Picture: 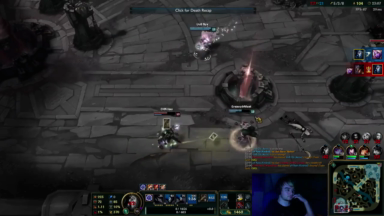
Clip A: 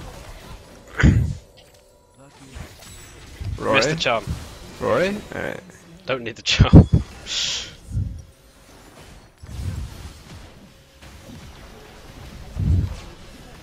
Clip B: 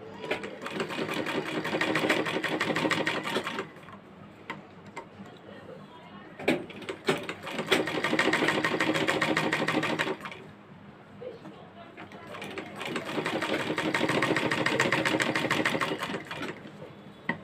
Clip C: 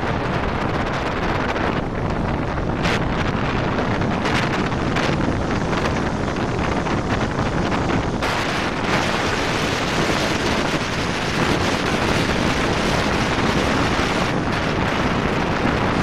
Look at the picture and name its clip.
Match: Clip A